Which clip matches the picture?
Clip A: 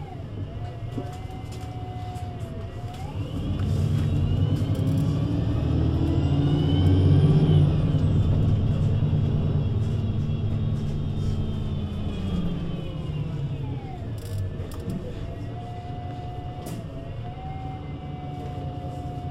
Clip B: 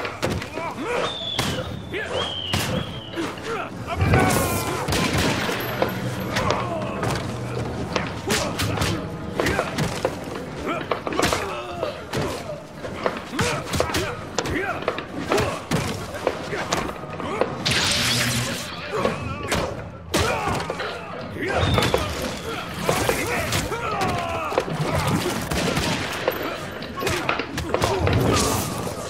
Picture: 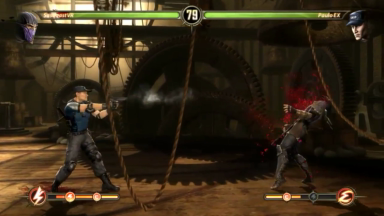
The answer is B